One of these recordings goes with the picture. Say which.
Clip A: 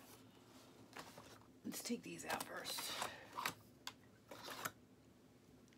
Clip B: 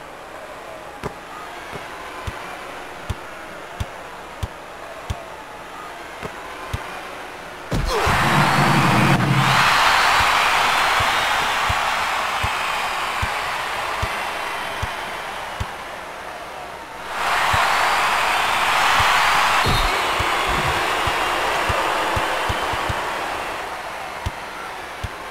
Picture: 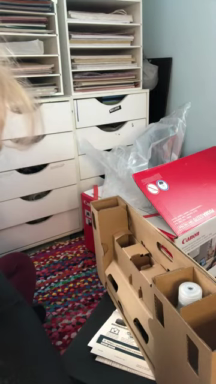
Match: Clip A